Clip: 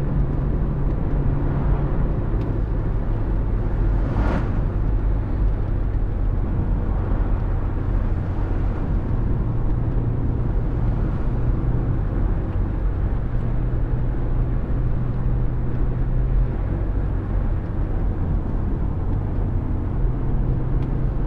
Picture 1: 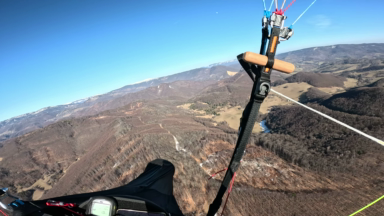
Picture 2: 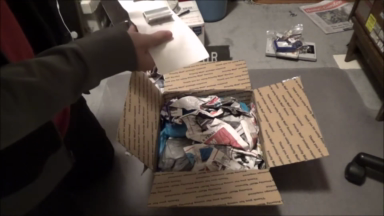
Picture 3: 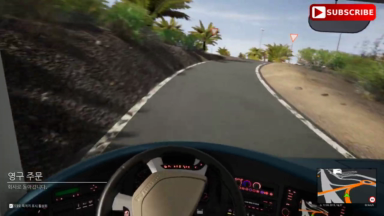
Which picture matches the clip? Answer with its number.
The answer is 3